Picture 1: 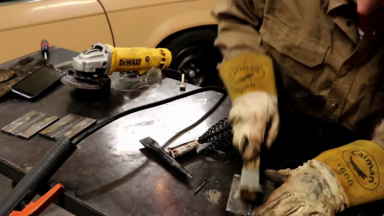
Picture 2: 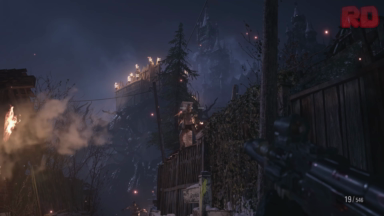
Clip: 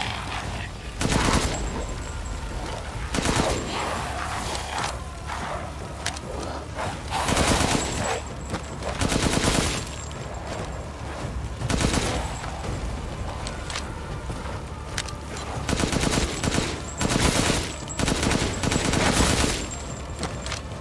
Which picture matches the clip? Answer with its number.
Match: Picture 2